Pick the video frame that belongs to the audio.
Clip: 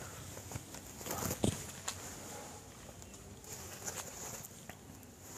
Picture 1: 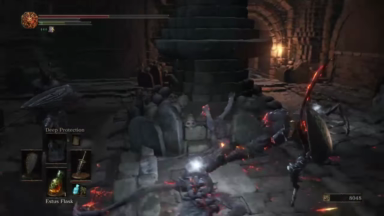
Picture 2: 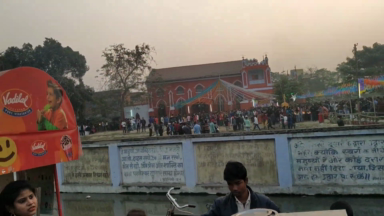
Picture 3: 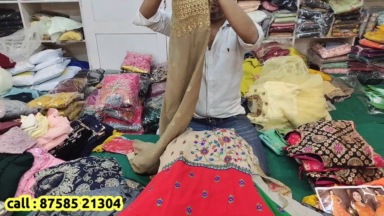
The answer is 3